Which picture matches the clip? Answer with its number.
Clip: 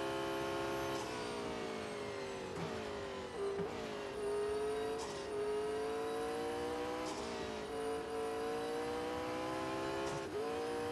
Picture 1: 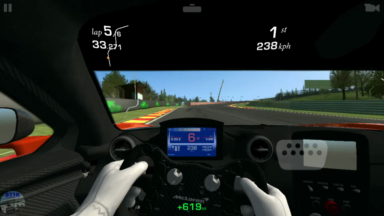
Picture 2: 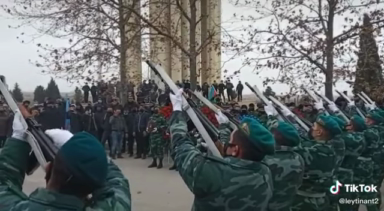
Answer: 1